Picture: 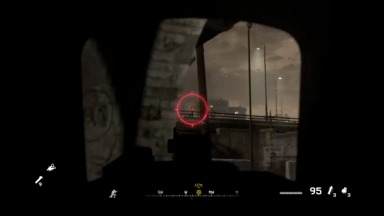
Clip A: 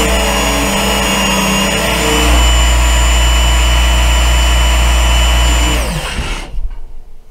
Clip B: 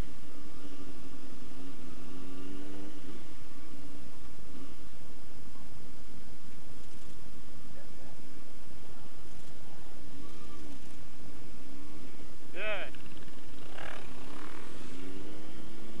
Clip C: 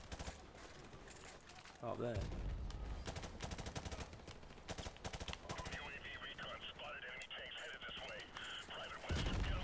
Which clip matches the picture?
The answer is C